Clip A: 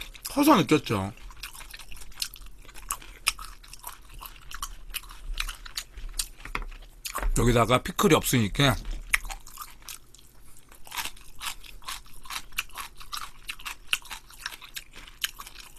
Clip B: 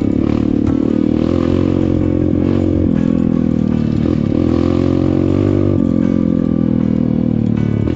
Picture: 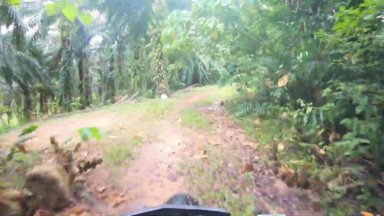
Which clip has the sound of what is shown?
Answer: B